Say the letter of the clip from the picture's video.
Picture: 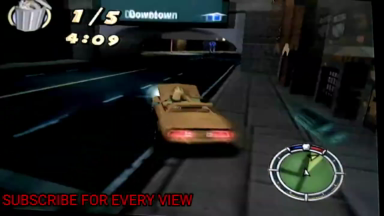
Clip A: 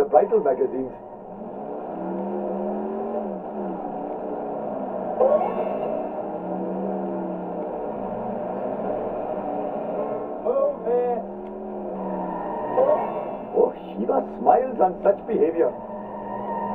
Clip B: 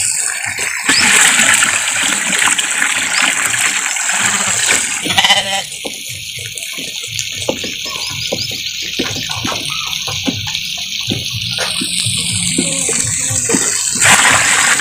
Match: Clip A